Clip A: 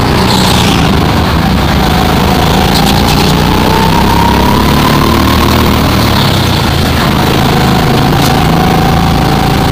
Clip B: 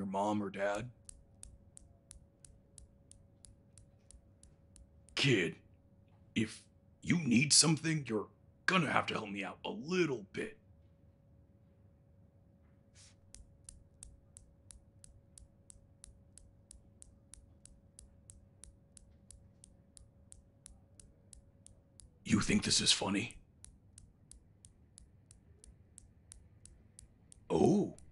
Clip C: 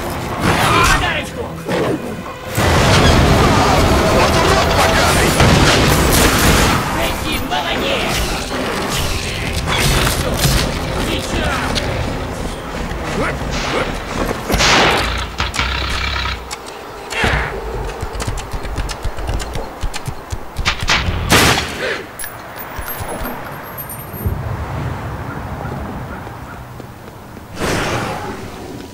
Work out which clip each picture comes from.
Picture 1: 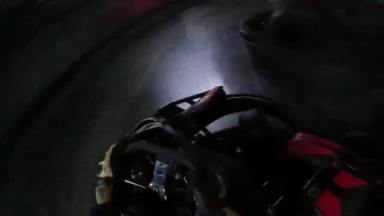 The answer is A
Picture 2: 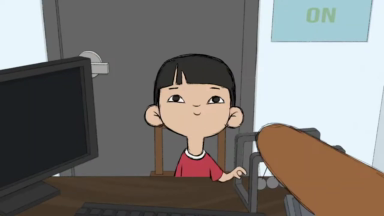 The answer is B